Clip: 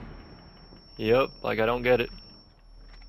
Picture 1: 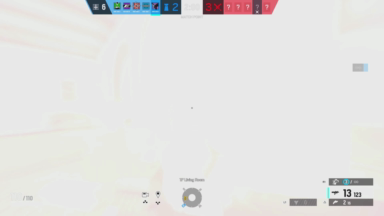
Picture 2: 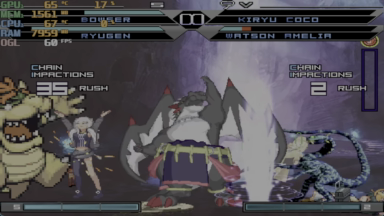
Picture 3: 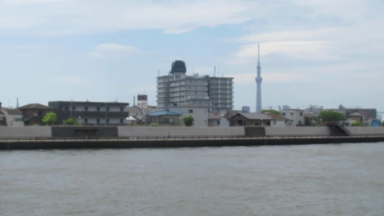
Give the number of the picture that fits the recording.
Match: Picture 1